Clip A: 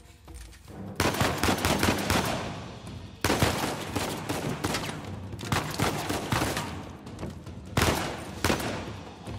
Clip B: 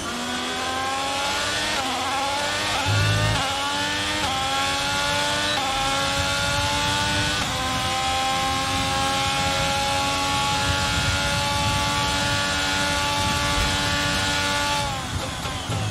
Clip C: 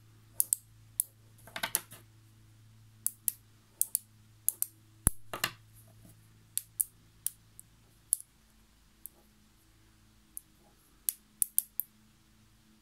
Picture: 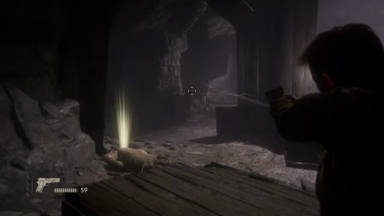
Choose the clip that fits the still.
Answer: A